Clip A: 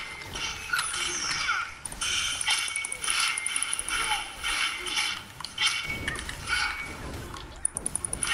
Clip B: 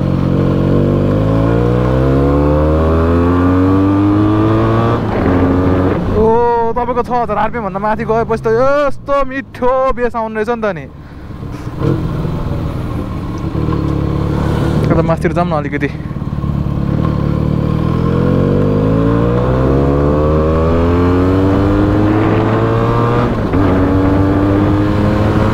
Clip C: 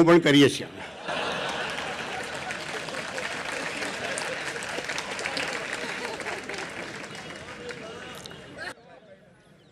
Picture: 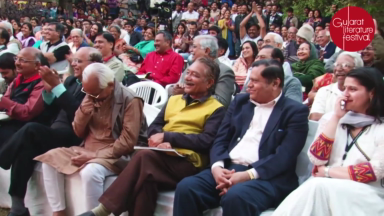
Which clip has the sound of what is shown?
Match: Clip C